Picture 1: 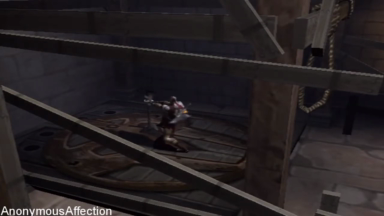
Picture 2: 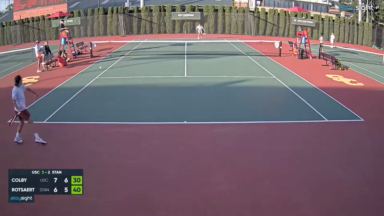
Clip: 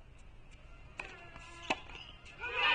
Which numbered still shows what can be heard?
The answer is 2